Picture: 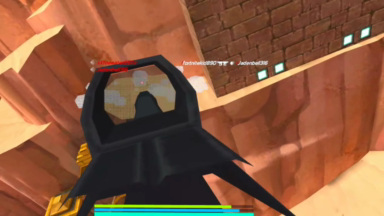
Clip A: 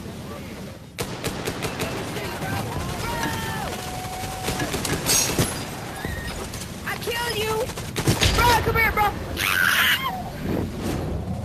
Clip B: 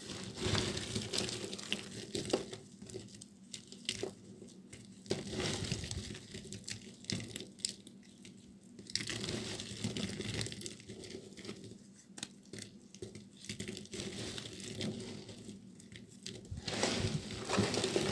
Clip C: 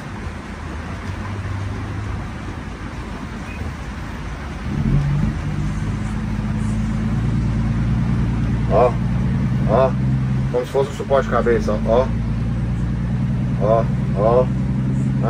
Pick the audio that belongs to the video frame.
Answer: A